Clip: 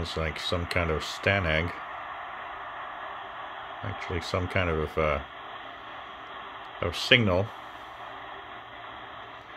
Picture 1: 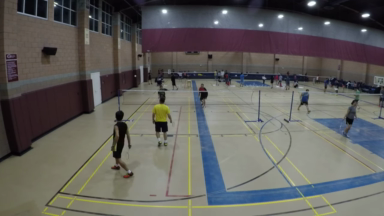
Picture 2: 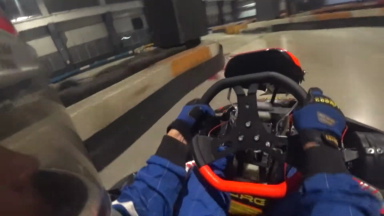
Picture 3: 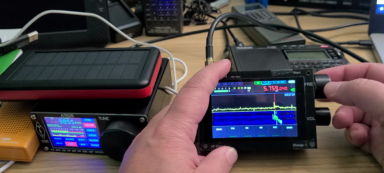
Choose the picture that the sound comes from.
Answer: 3